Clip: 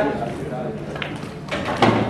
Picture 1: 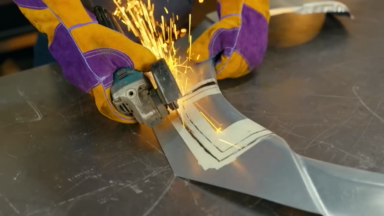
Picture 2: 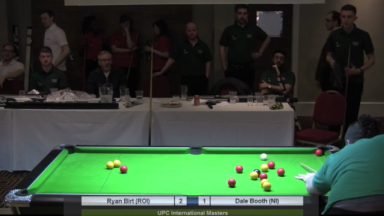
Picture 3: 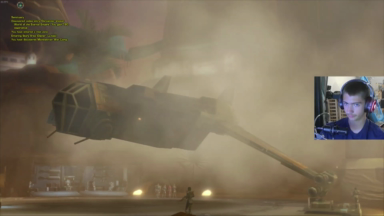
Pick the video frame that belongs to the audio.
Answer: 2